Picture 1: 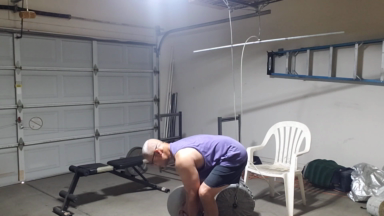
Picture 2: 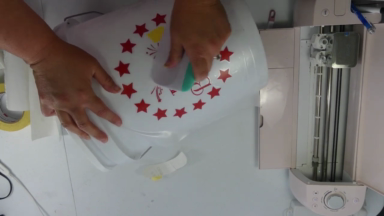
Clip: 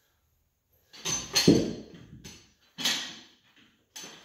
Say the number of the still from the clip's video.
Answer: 1